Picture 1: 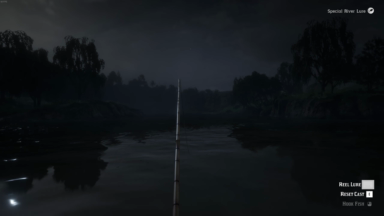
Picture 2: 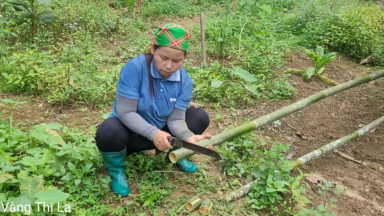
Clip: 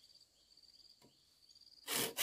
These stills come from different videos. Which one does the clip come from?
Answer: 2